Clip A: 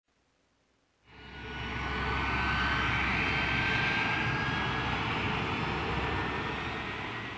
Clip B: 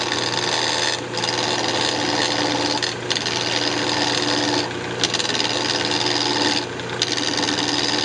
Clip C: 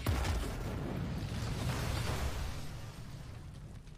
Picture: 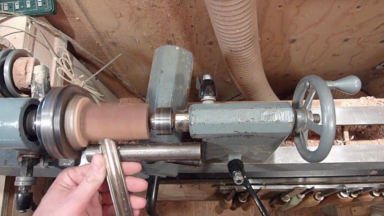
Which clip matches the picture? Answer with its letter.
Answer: B